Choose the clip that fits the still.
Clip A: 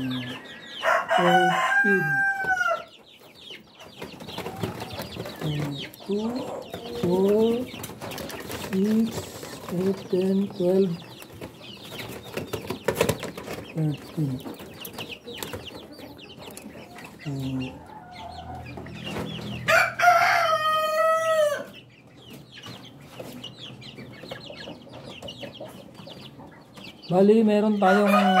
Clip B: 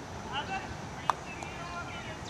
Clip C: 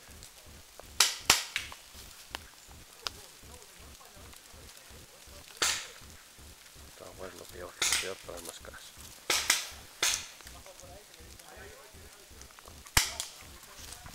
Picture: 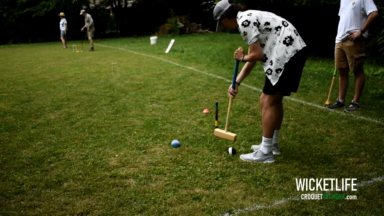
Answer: B